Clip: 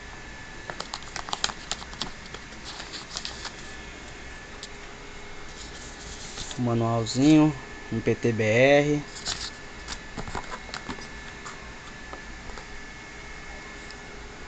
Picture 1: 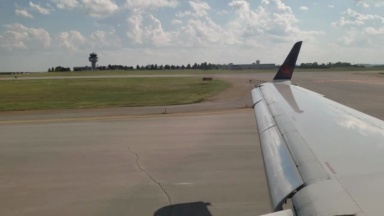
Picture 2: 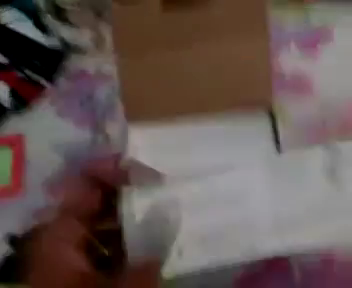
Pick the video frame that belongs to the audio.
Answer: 2